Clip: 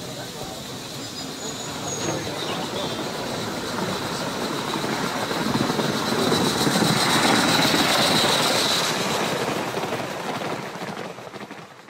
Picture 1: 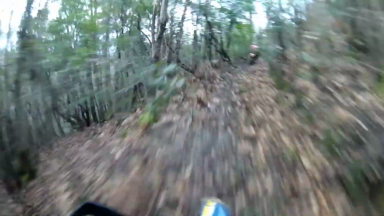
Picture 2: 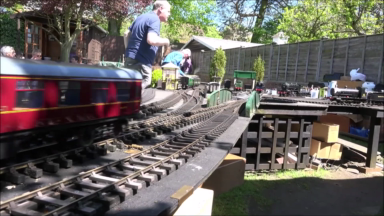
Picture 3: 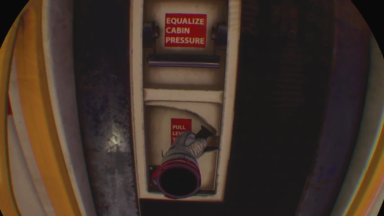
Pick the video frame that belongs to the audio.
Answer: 2